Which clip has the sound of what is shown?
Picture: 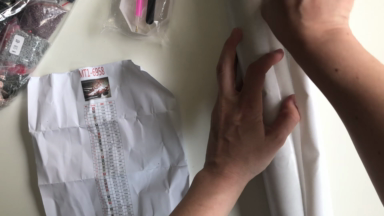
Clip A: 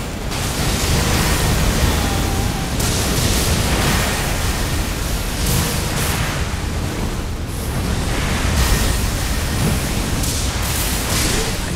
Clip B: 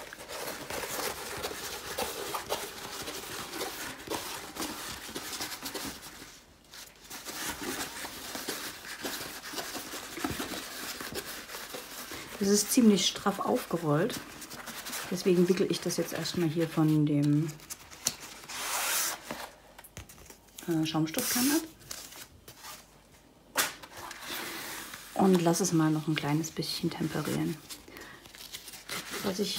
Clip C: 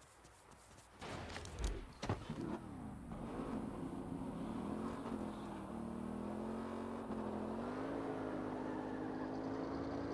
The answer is B